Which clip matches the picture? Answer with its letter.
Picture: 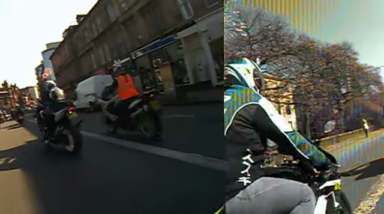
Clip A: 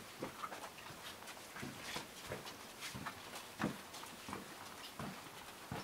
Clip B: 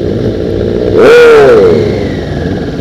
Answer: B